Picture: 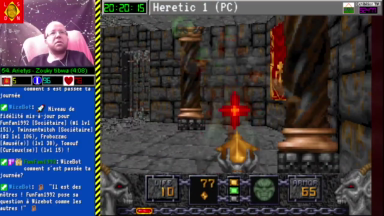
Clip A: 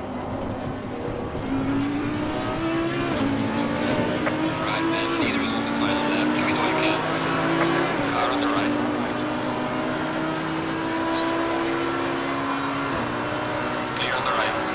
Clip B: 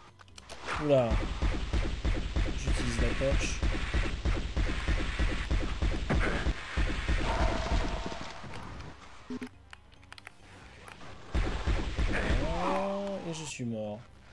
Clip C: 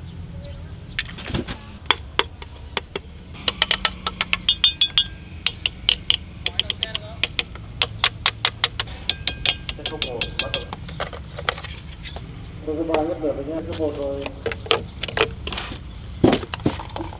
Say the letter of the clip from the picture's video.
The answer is B